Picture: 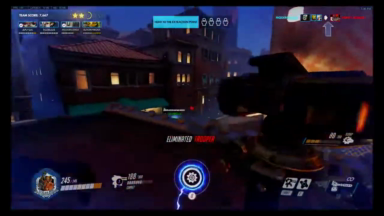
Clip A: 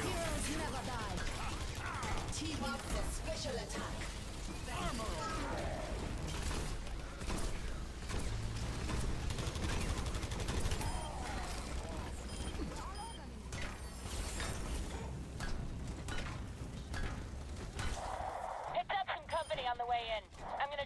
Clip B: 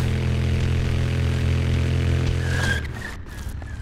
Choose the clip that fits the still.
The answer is A